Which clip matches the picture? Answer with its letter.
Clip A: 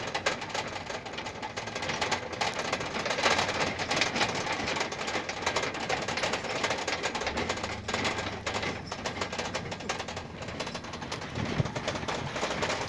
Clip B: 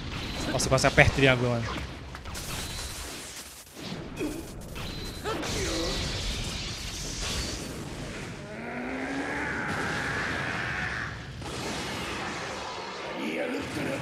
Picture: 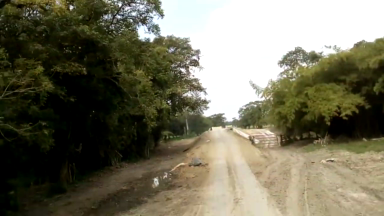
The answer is A